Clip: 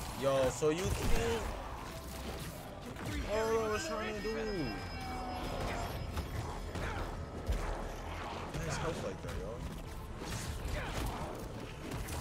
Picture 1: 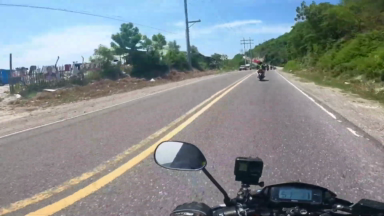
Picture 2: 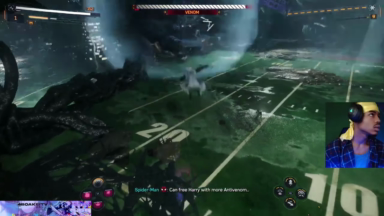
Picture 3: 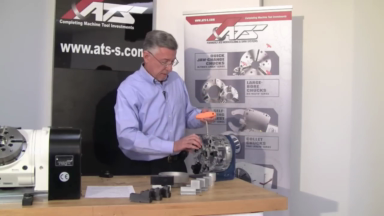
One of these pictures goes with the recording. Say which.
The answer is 2